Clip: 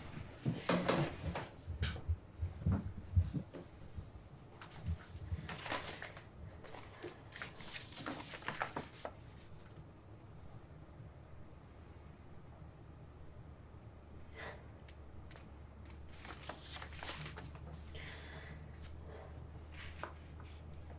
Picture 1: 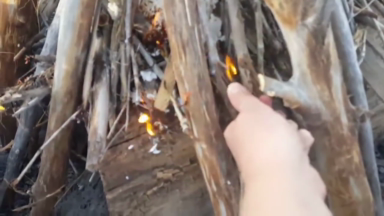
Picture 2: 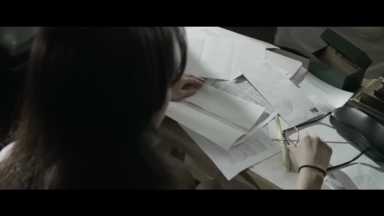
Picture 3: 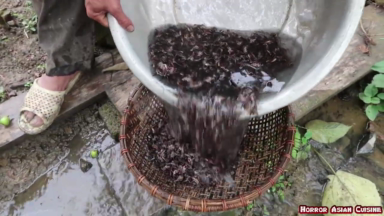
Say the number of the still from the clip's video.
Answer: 2